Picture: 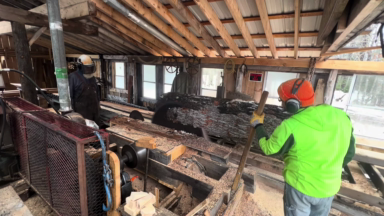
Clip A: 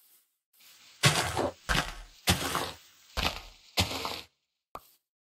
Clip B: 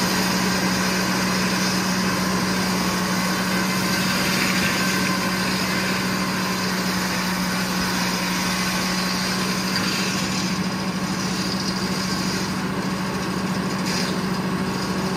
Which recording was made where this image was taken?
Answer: B